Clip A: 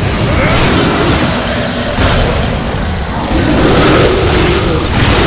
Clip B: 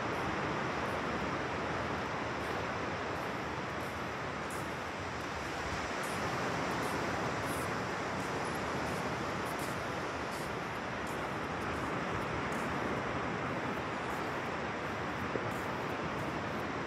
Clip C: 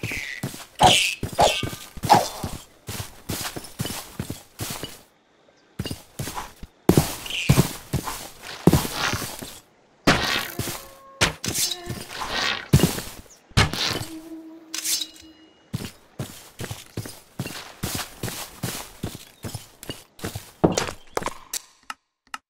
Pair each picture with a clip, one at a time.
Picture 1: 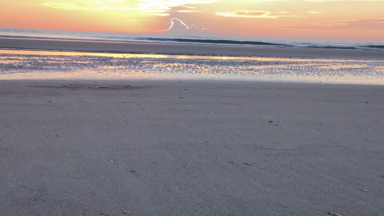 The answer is B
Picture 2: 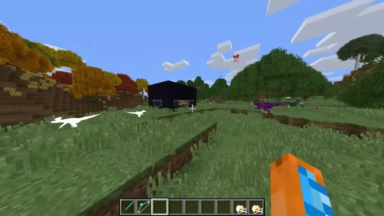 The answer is C